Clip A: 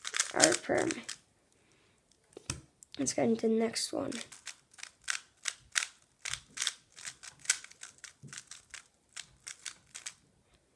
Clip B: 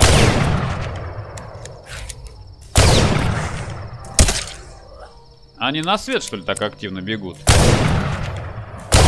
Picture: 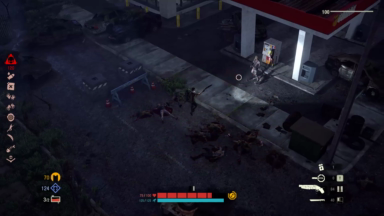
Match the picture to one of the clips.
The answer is B